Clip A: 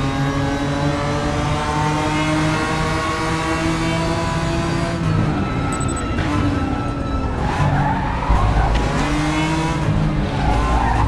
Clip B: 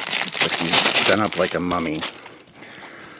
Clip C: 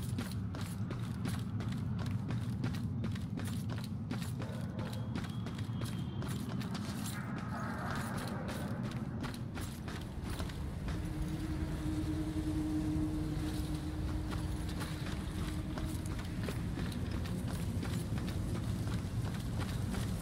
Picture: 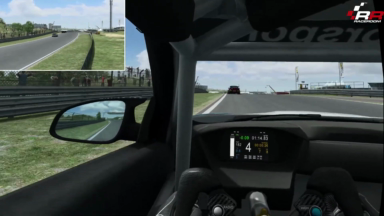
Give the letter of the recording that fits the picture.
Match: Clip A